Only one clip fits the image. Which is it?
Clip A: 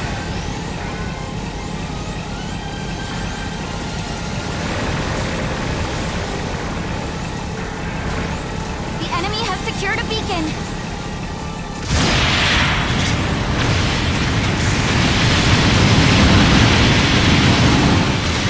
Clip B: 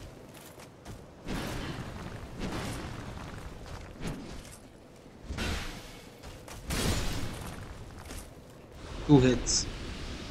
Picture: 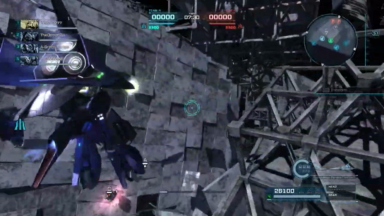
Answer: A